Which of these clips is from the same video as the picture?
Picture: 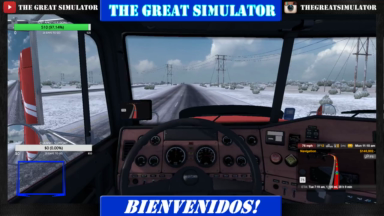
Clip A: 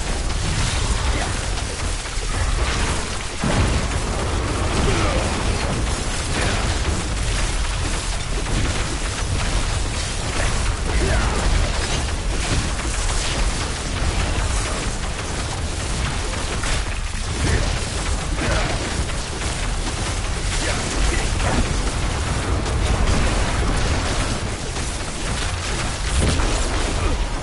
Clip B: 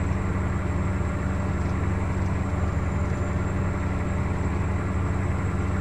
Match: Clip B